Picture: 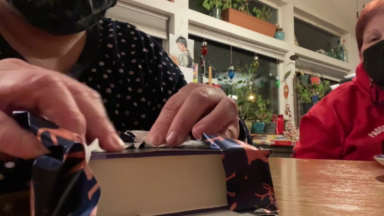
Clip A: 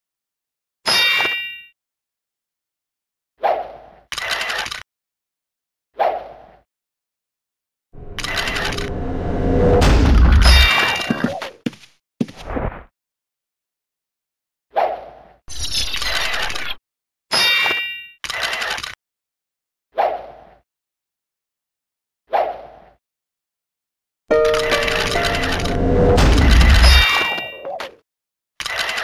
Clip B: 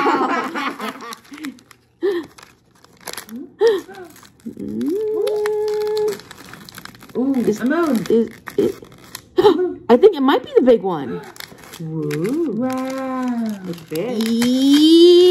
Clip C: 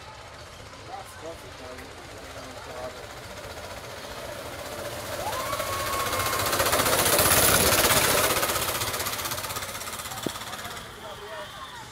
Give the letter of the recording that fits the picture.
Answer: B